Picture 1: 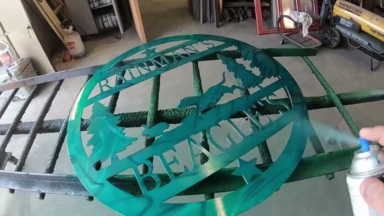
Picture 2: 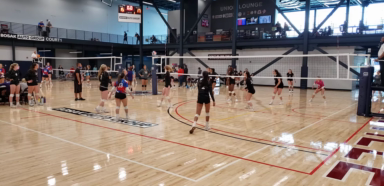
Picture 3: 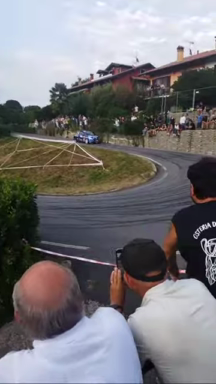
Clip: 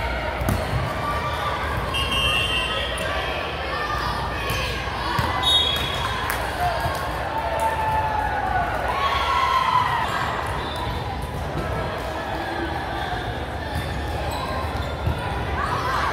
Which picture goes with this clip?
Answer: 2